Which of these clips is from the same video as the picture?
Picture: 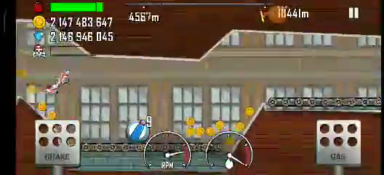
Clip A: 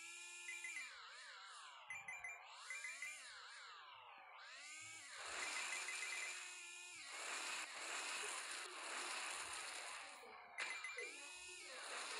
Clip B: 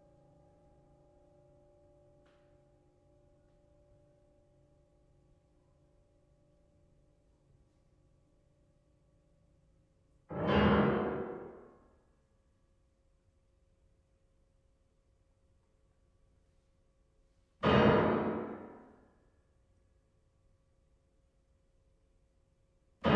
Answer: A